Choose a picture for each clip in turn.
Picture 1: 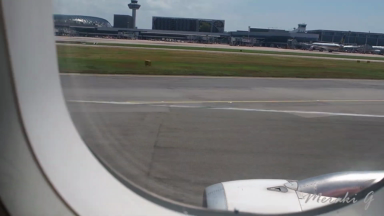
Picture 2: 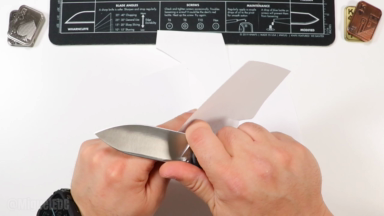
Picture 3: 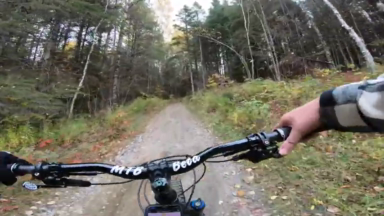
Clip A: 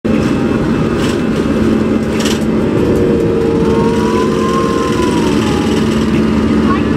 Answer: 1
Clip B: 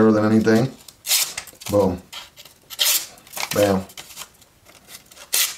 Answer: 2